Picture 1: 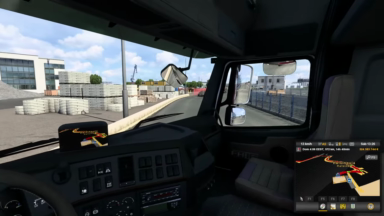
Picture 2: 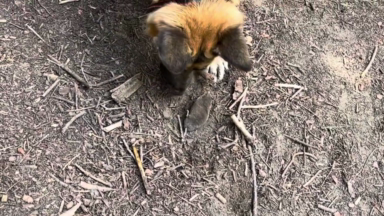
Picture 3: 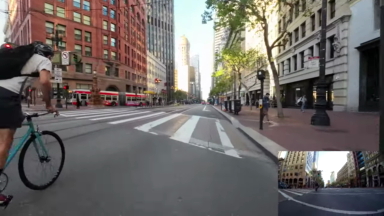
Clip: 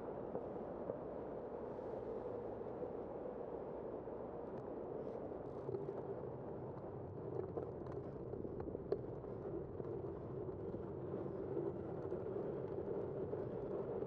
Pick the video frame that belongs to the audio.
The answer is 3